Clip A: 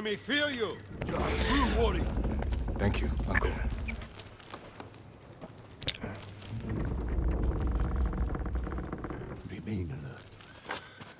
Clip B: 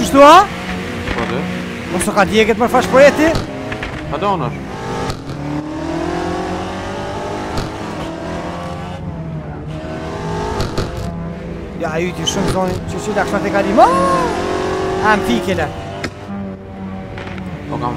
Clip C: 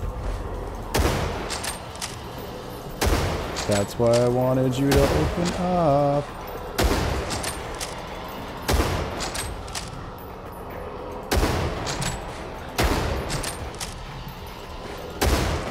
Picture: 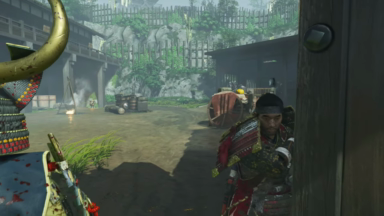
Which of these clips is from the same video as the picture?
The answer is A